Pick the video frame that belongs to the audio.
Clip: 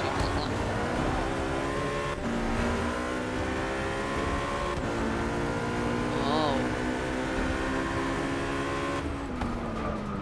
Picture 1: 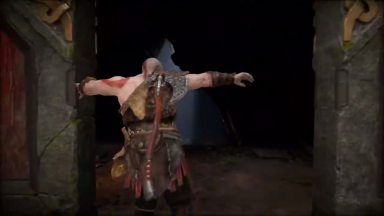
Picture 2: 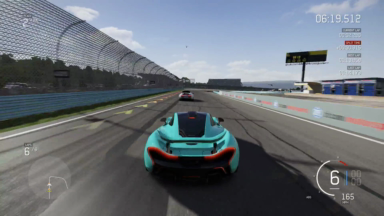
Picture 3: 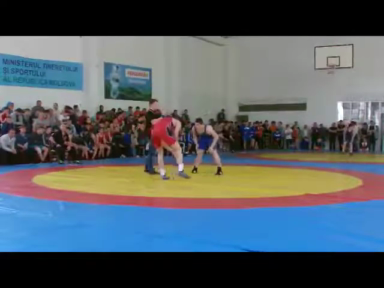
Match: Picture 2